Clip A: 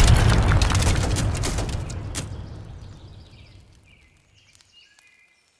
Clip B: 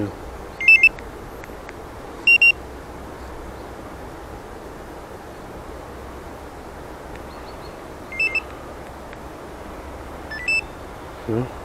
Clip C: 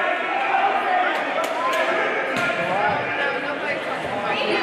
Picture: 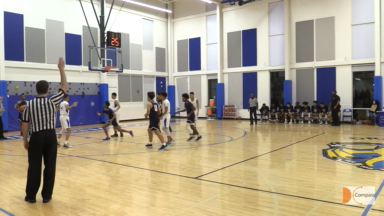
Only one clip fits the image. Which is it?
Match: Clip C